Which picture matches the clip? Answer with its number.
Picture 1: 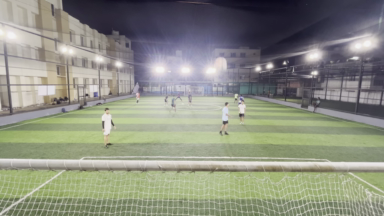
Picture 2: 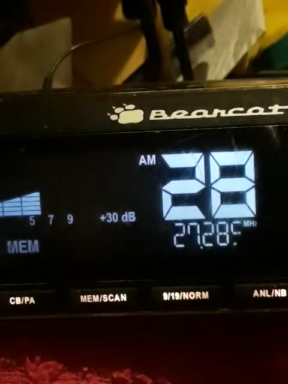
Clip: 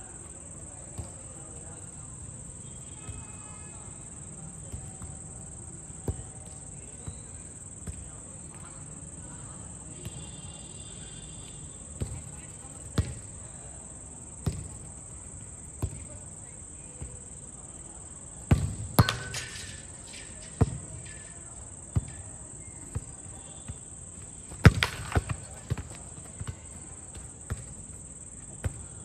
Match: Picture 1